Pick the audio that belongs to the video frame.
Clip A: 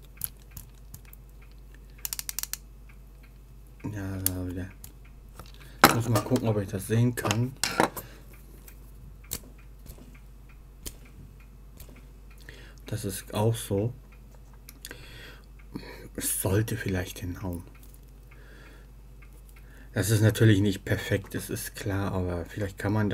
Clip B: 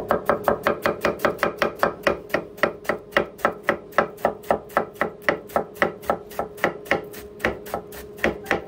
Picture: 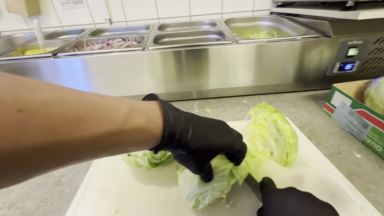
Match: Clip B